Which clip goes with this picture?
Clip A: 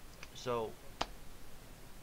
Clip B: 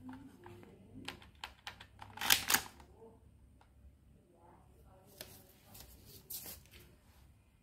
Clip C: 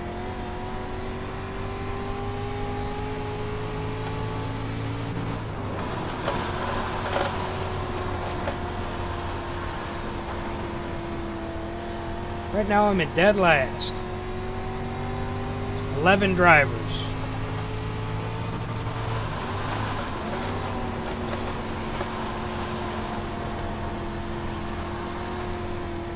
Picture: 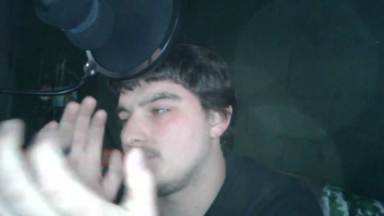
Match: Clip A